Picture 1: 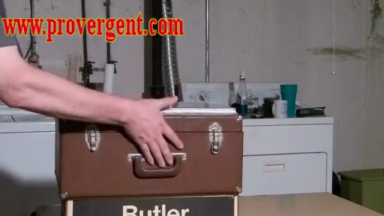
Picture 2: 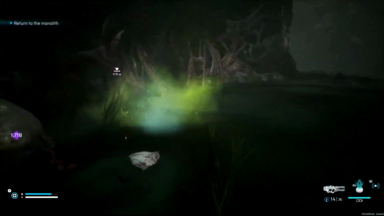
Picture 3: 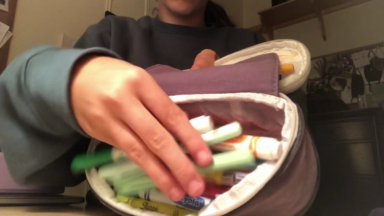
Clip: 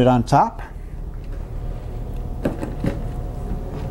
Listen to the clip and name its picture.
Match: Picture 1